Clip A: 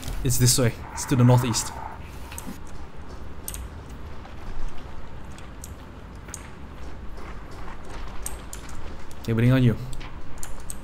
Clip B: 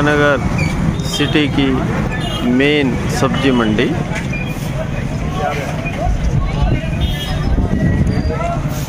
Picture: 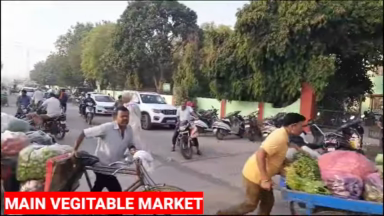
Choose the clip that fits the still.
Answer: B